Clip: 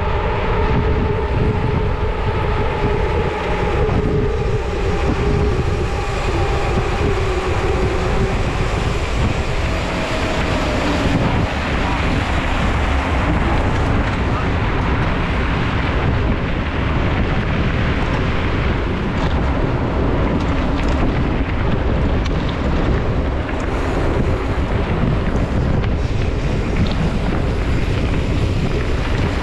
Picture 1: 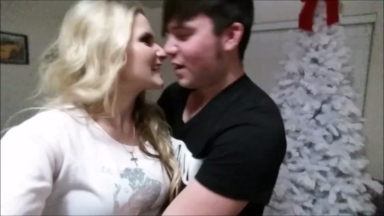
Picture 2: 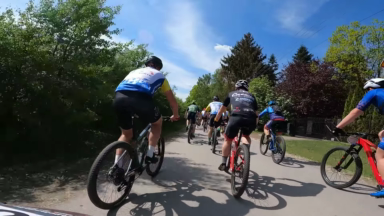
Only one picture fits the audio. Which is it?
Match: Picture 2